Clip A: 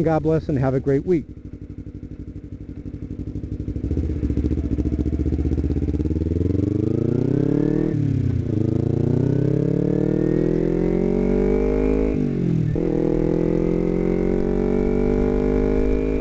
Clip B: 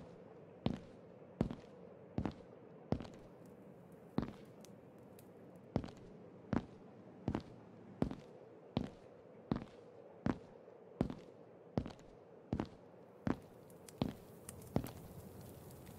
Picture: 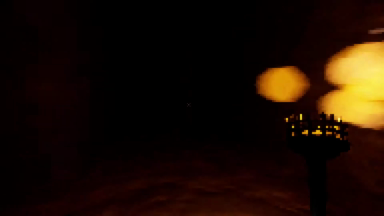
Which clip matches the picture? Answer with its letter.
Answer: B